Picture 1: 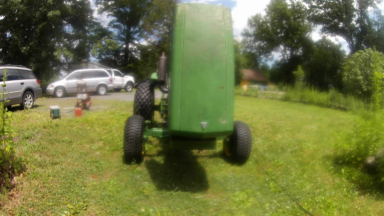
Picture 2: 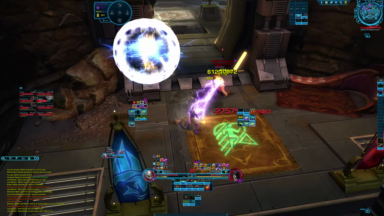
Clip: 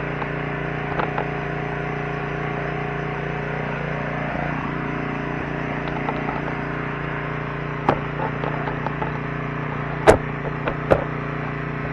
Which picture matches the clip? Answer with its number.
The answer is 1